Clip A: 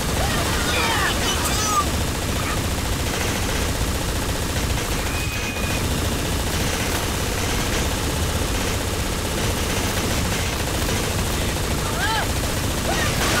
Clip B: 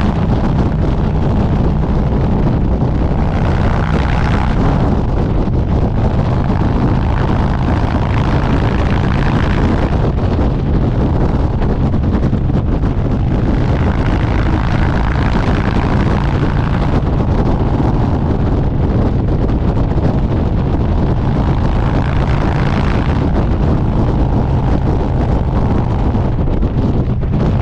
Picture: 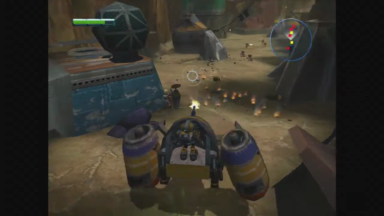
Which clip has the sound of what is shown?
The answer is A